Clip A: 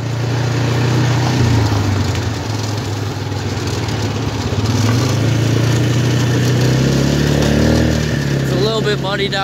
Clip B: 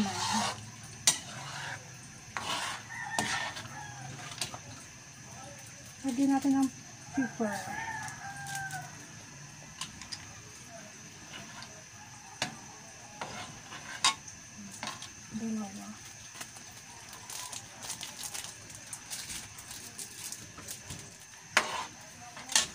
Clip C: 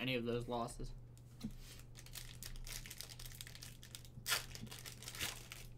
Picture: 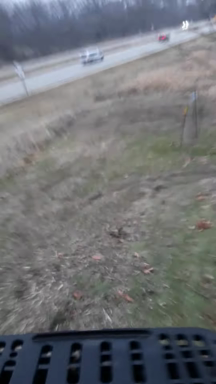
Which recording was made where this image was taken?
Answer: A